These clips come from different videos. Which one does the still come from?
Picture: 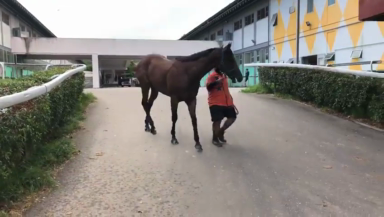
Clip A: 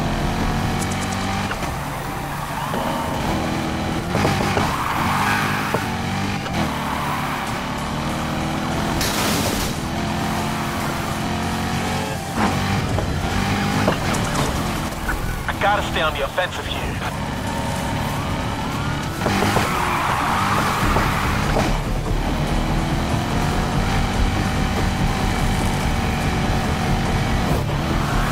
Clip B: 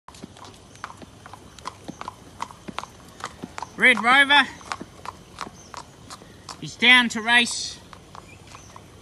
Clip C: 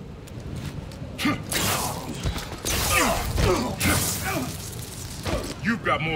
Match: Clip B